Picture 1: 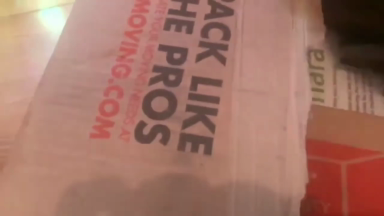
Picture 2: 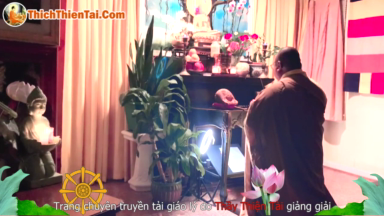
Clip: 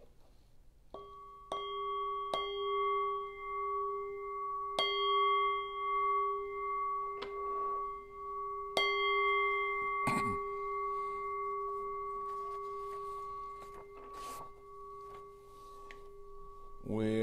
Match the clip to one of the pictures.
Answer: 2